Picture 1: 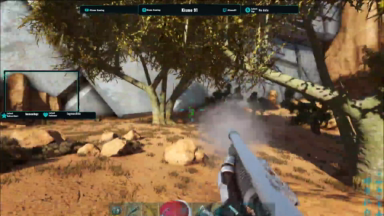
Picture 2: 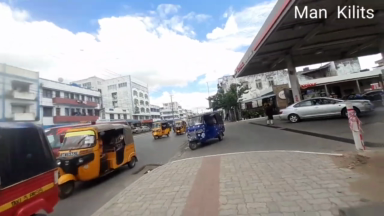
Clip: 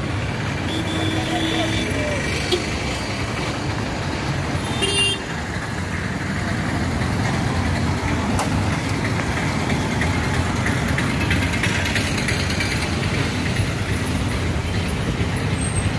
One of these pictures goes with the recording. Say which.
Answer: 2